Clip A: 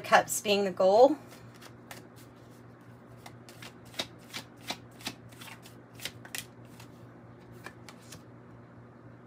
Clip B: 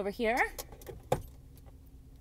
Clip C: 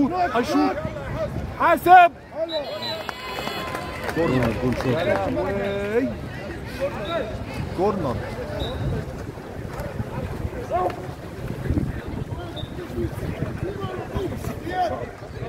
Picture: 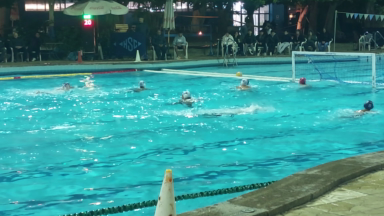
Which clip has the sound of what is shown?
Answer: C